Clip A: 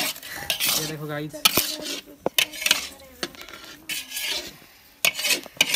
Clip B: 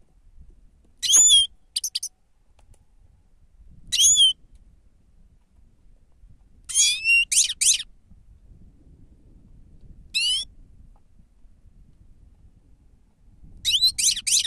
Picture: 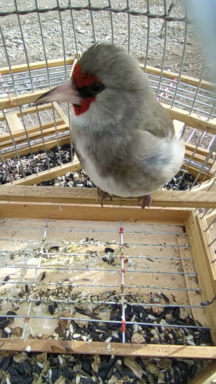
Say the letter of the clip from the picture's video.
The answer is B